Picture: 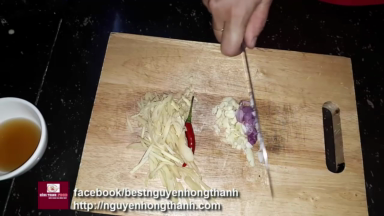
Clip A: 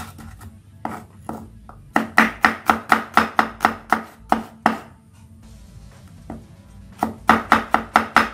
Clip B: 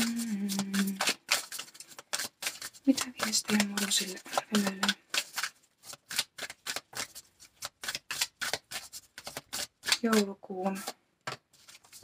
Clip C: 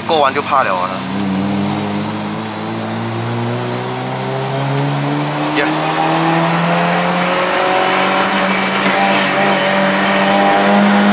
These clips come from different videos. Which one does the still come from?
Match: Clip A